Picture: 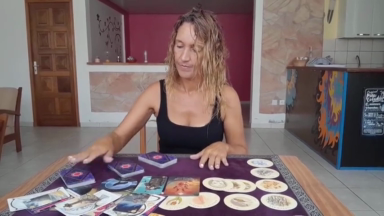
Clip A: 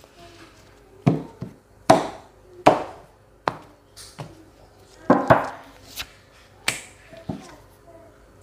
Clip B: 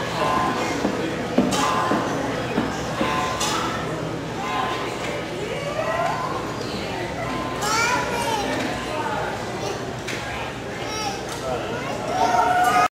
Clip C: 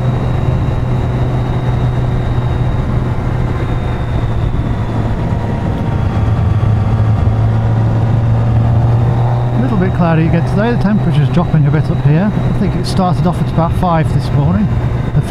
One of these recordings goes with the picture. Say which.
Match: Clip A